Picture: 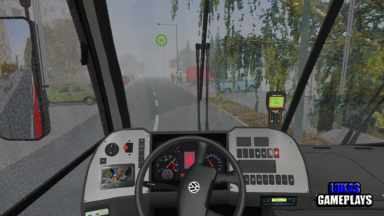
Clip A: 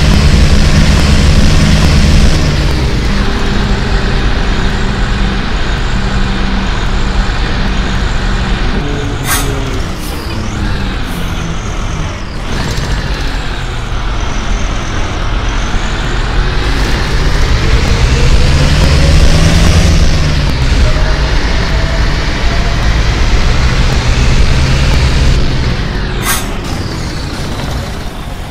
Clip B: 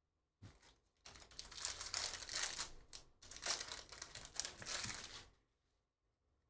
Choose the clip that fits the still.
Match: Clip A